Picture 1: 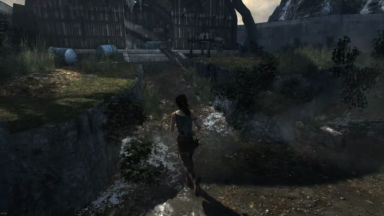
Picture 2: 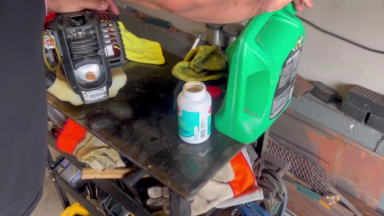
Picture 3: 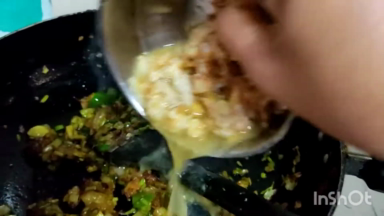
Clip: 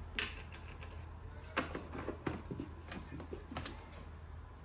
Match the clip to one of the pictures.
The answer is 2